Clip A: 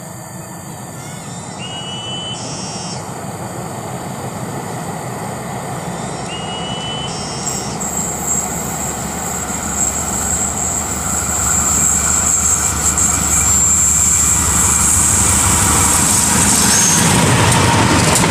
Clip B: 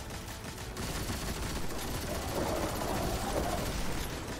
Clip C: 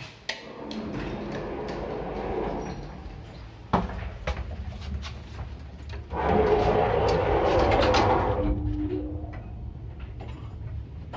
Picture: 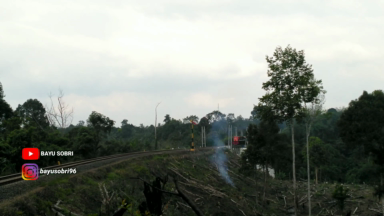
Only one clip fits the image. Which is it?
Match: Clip A